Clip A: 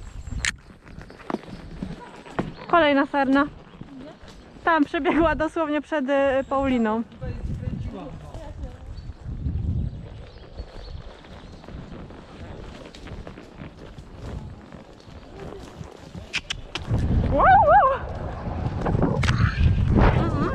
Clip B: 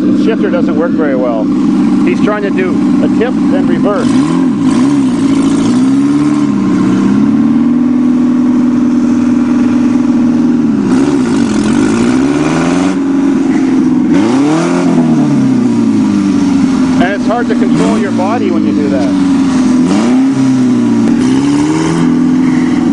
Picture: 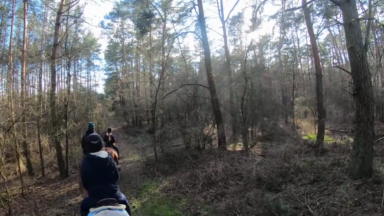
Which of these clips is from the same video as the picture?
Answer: A